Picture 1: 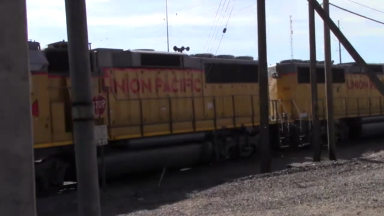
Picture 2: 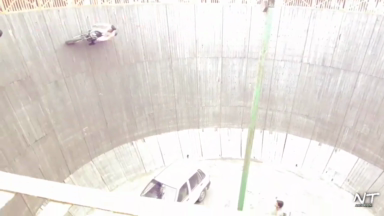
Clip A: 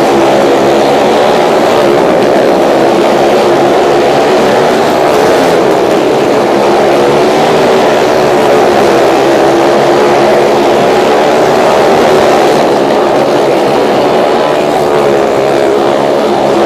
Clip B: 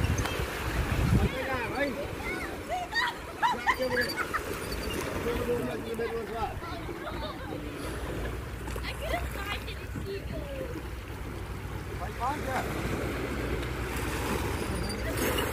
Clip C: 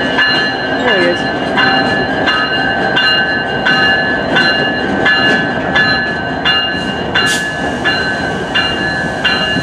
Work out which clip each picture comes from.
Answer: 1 C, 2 A